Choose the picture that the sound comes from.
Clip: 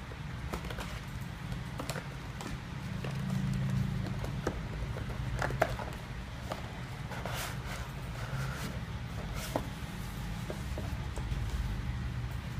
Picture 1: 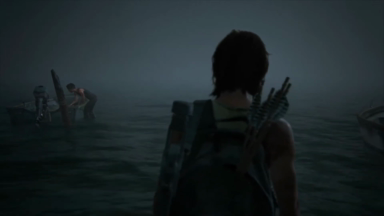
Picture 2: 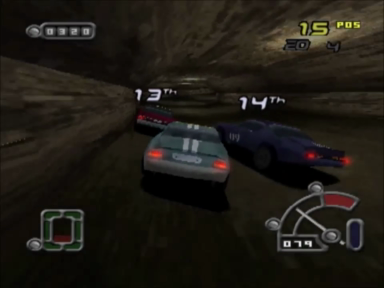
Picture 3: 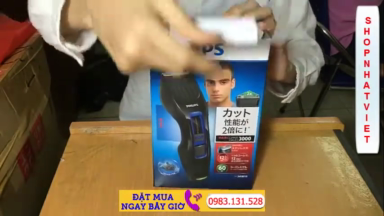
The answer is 3